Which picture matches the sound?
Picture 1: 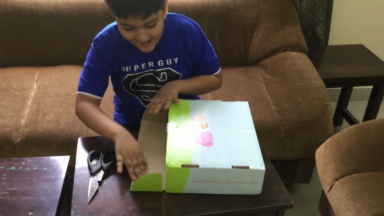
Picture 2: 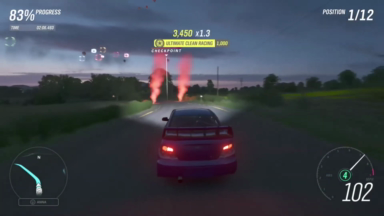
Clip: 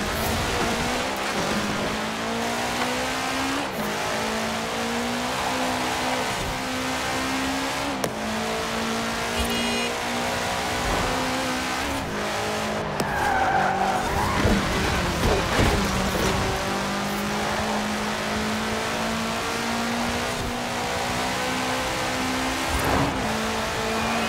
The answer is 2